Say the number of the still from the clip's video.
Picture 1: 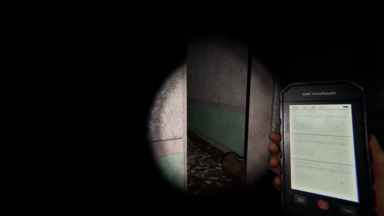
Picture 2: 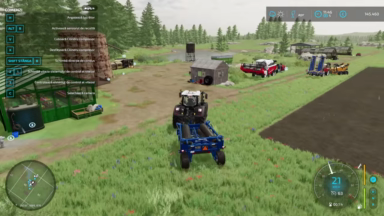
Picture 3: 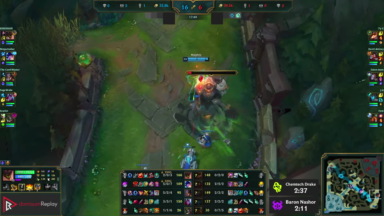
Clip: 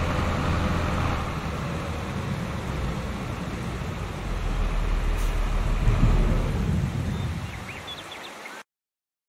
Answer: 2